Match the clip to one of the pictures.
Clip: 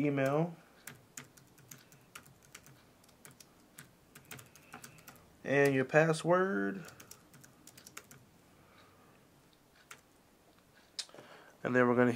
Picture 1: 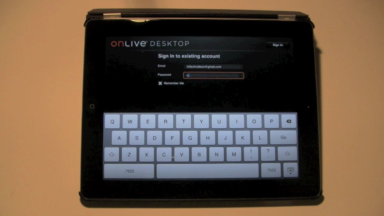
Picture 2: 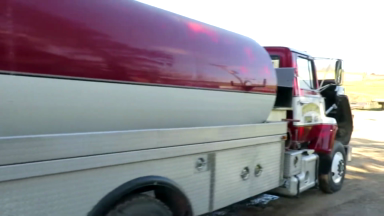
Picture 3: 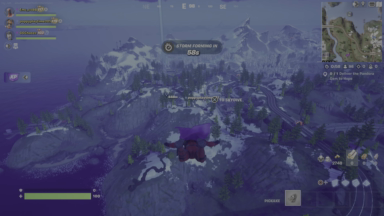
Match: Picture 1